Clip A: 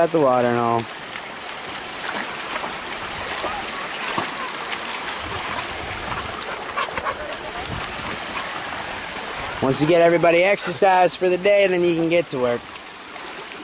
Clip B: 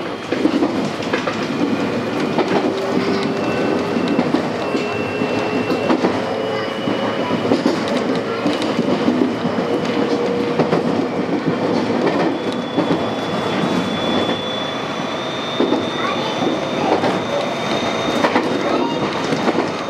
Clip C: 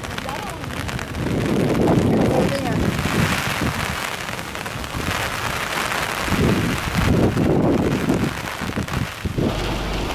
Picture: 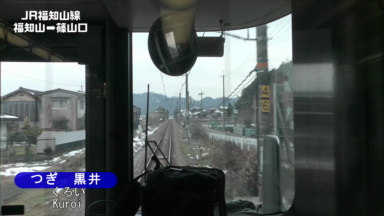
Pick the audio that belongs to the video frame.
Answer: B